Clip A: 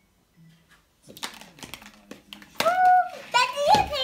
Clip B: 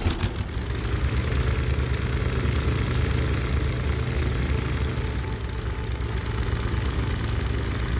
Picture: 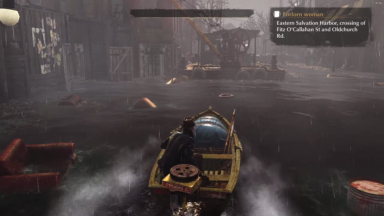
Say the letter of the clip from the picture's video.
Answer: B